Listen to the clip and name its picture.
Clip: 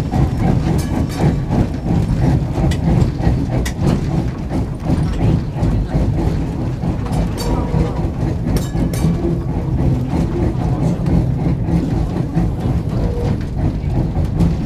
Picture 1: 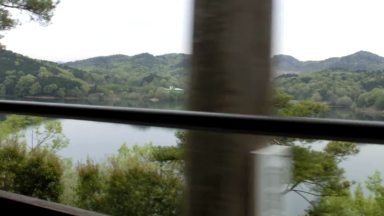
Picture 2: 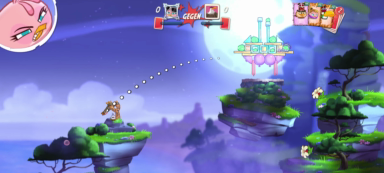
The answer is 1